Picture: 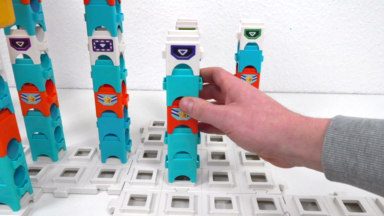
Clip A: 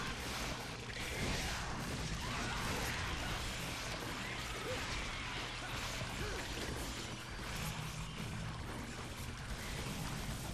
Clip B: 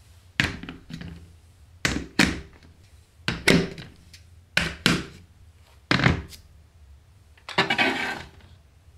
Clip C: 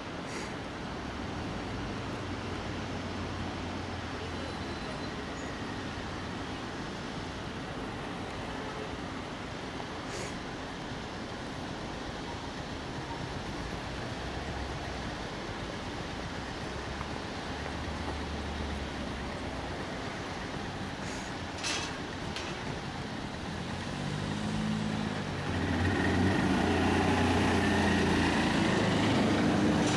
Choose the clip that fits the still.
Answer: B